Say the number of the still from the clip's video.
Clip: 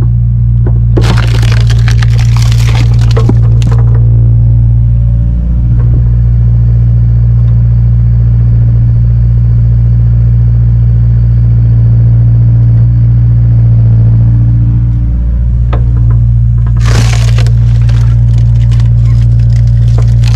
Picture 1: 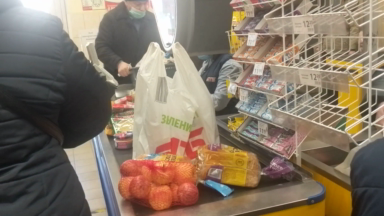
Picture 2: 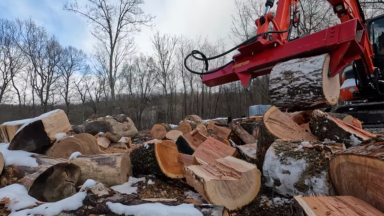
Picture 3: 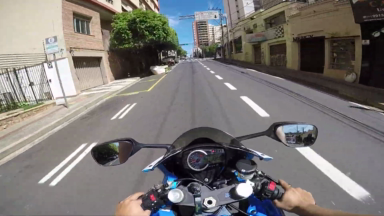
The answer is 2